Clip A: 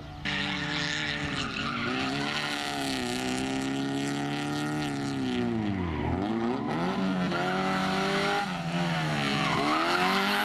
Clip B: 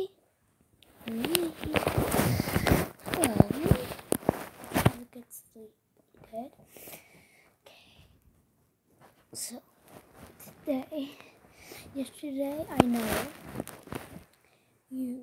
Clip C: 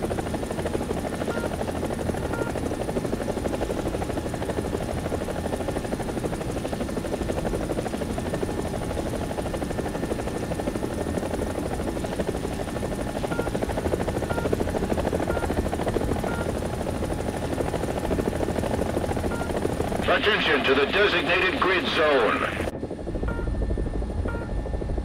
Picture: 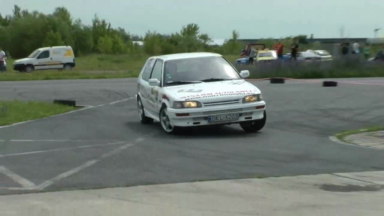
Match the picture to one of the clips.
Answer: A